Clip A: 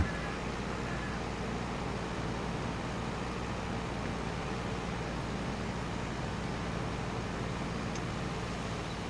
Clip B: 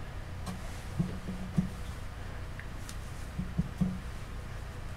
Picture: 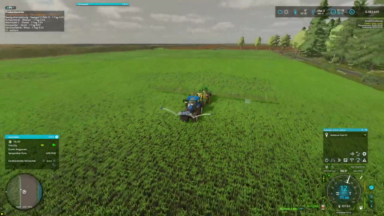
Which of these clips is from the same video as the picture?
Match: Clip A